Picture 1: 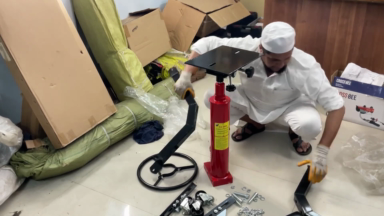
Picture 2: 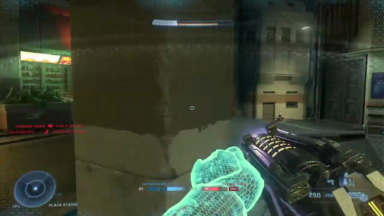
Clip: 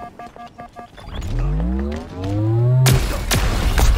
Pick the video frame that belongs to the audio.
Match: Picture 2